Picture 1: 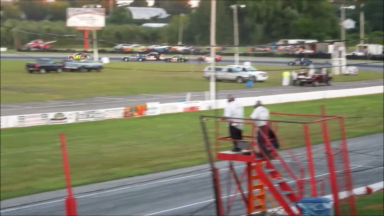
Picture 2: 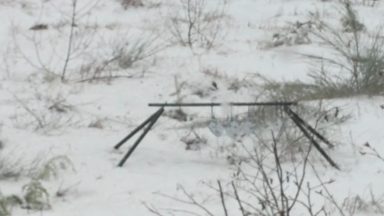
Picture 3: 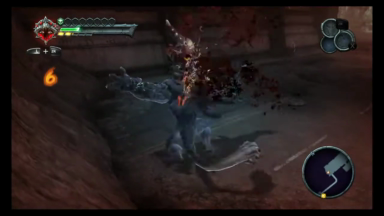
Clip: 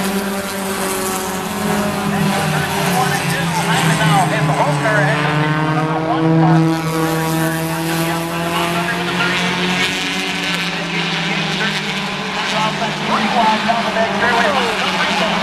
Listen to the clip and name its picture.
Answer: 1